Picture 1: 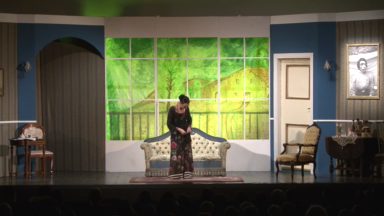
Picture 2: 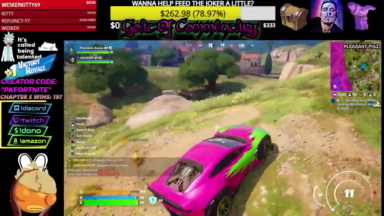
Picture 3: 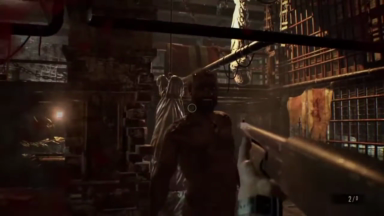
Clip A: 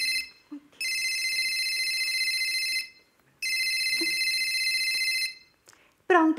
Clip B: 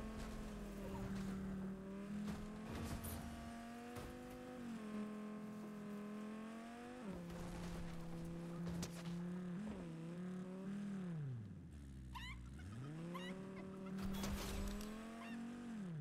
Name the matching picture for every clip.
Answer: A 1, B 2